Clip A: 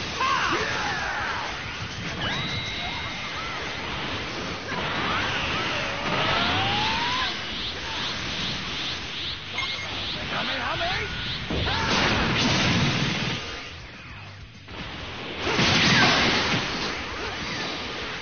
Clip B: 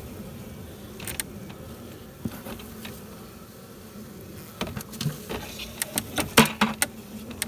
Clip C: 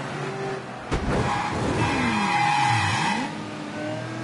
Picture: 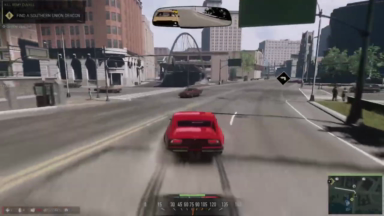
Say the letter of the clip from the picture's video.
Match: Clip C